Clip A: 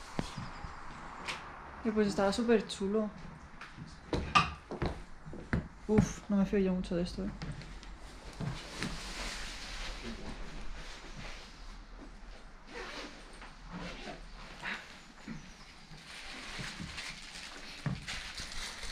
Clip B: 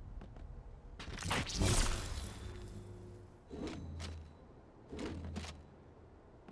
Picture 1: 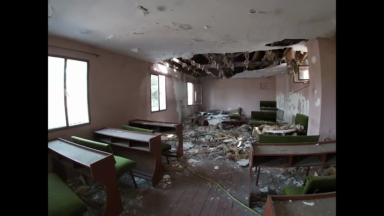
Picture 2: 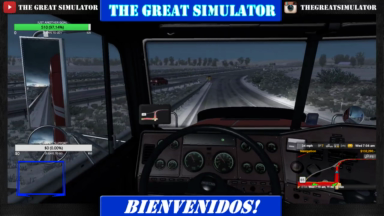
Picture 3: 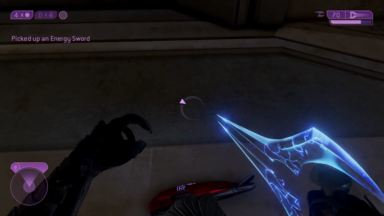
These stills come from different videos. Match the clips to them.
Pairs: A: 1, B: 3